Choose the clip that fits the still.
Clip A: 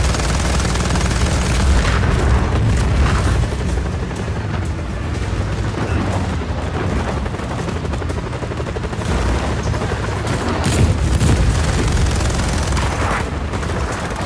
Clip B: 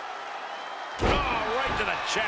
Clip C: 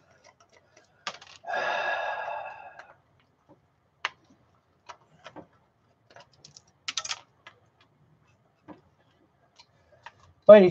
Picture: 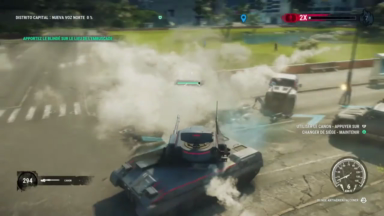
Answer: A